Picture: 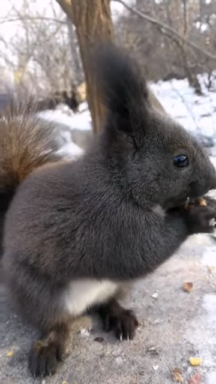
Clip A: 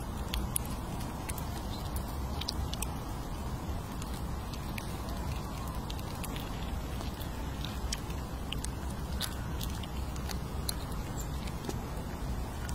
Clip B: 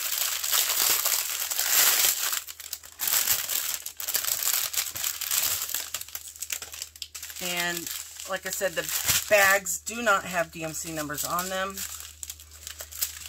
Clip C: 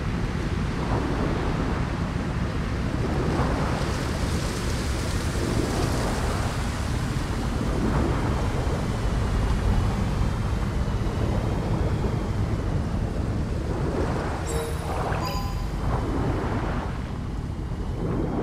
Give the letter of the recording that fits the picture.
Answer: A